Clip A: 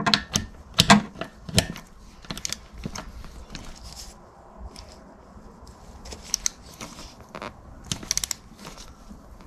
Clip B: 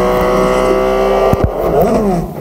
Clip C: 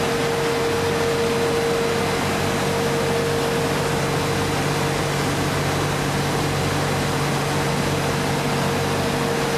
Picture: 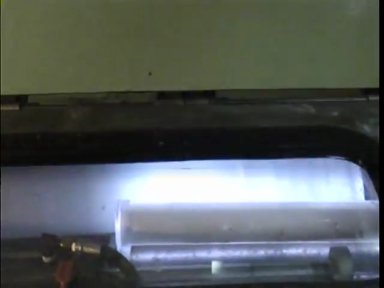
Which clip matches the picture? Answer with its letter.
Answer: C